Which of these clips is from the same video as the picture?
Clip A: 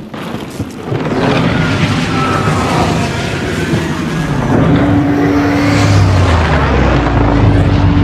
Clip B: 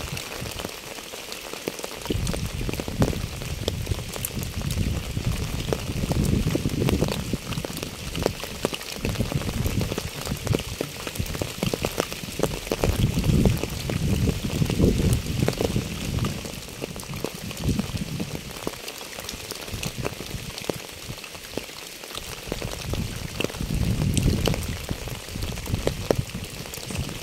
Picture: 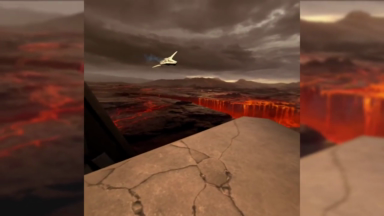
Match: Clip A